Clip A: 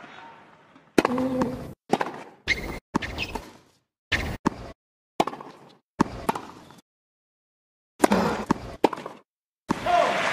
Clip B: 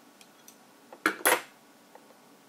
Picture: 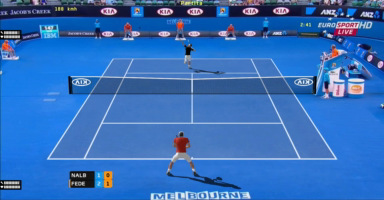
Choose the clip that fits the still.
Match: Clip A